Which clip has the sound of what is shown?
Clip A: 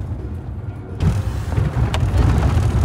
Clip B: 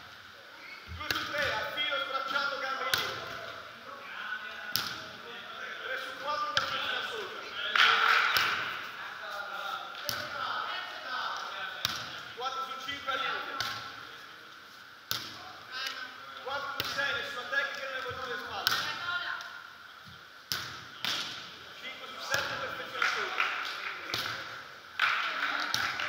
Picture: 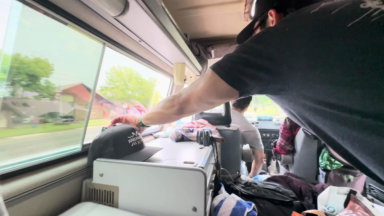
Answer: A